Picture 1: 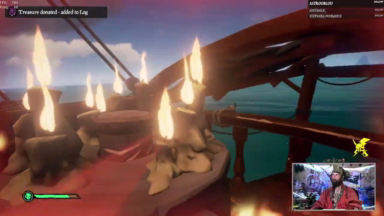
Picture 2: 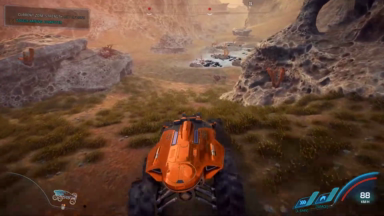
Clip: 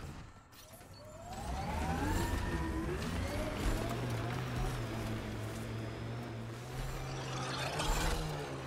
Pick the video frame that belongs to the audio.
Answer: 2